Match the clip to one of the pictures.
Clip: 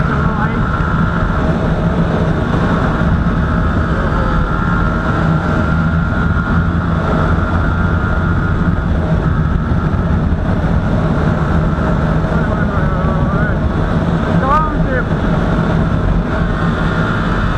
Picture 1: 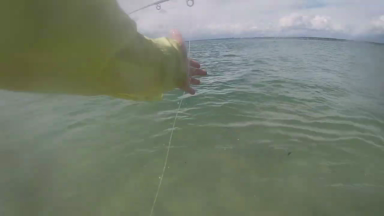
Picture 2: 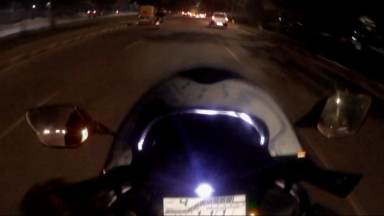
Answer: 2